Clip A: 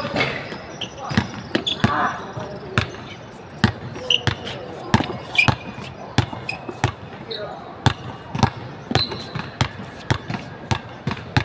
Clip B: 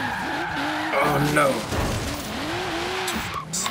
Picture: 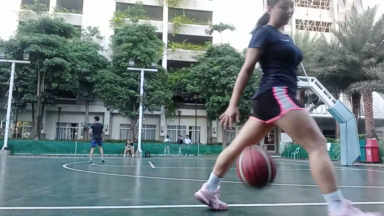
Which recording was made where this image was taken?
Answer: A